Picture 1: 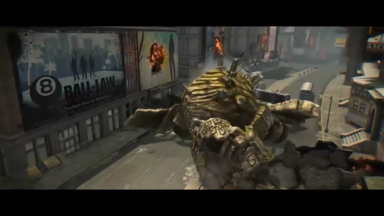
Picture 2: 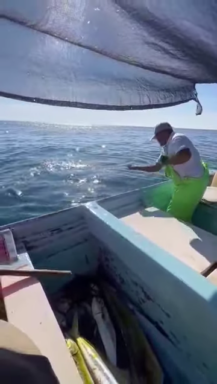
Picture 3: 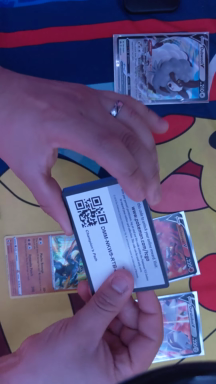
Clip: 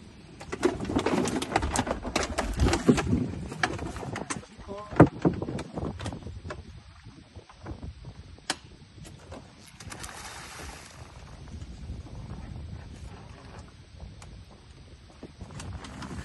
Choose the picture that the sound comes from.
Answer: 2